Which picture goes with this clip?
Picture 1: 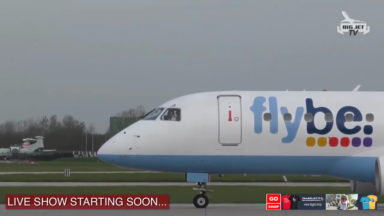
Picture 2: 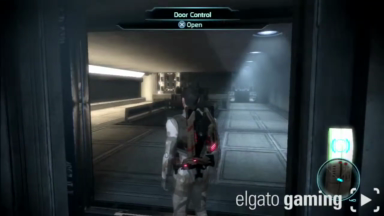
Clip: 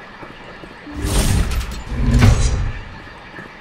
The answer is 2